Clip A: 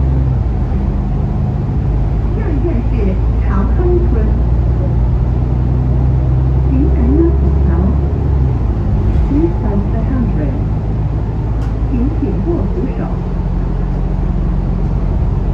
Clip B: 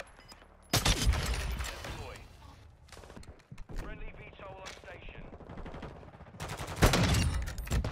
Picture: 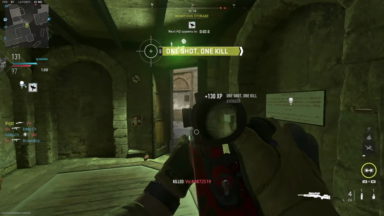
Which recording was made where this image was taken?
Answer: B